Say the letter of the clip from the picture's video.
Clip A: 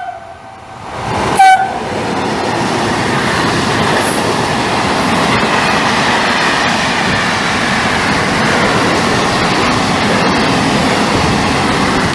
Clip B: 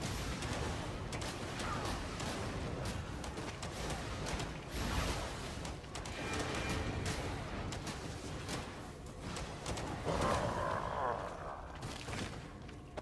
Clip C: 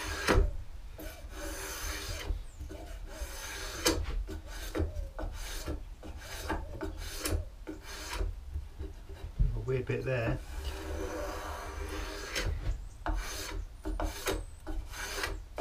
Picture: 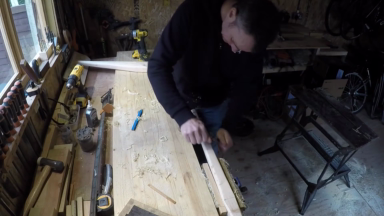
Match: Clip C